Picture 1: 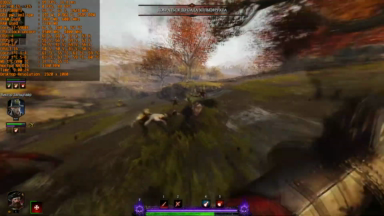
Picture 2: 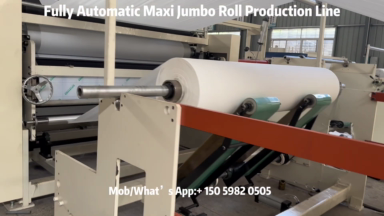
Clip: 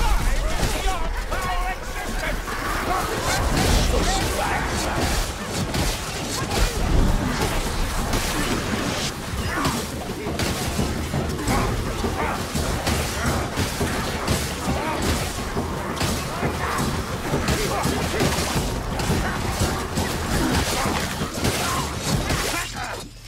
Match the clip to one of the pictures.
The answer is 1